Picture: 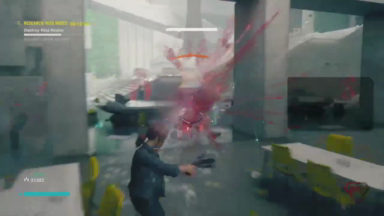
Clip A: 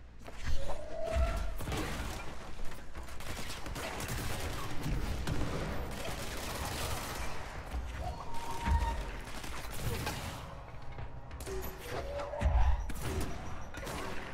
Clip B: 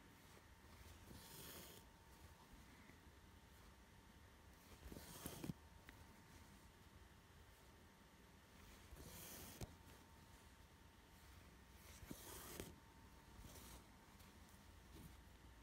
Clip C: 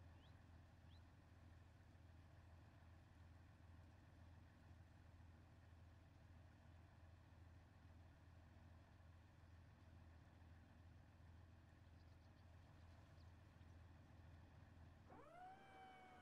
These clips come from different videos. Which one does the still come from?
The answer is A